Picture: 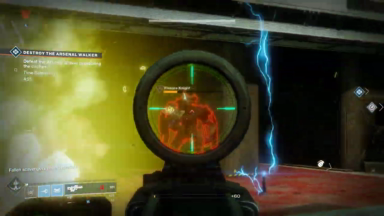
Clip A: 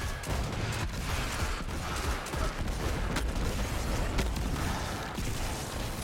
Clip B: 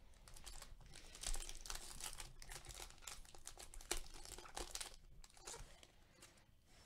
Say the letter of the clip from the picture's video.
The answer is A